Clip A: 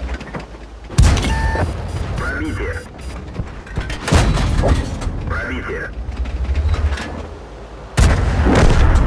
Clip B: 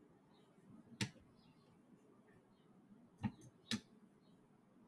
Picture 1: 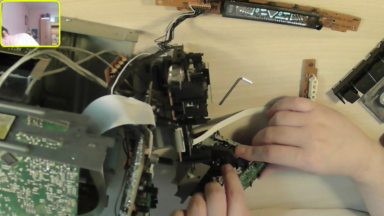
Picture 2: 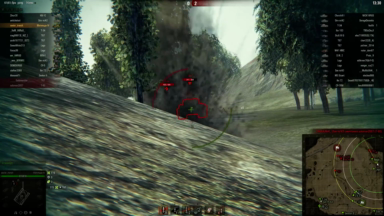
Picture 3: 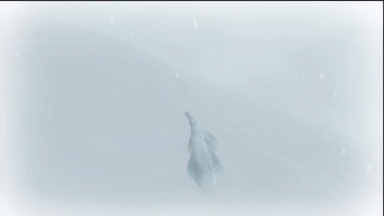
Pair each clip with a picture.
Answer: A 2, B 1